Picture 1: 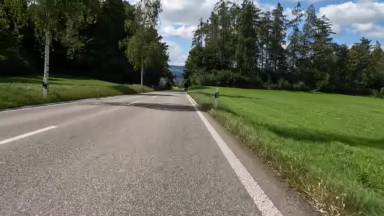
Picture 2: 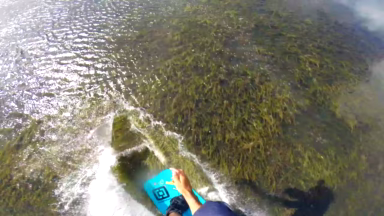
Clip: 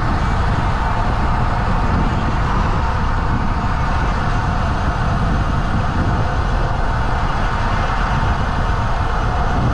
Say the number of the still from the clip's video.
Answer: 1